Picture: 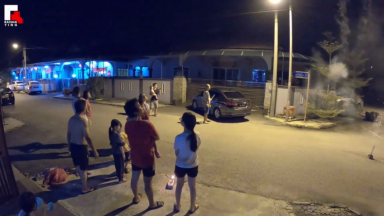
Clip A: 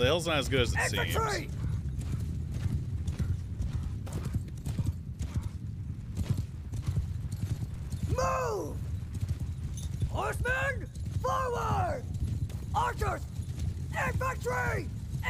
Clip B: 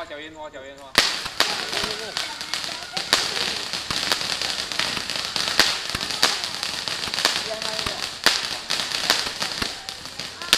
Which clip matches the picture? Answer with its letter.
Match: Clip B